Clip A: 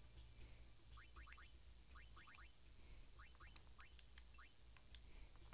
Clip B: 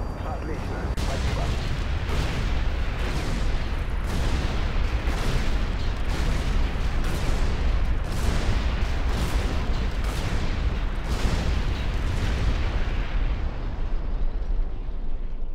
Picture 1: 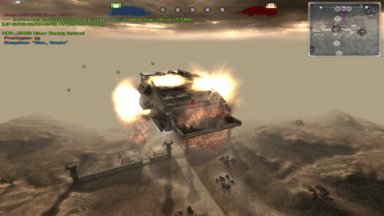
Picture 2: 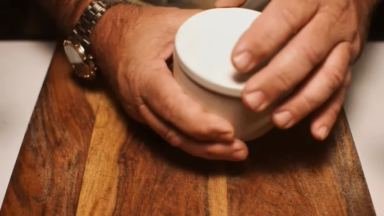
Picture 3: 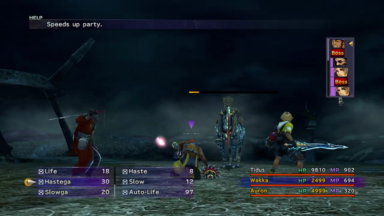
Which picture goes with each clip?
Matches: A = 3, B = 1